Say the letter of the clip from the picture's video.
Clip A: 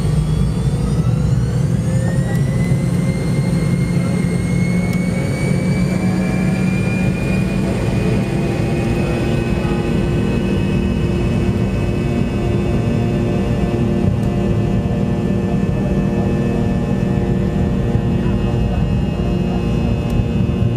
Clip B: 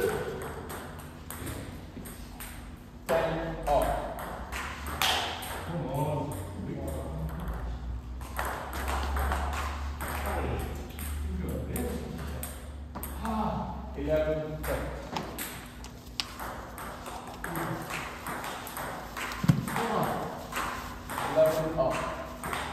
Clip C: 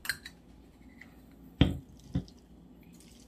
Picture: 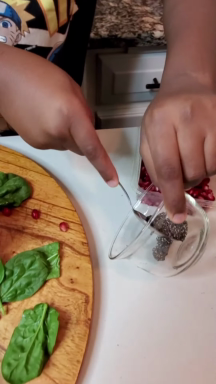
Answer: C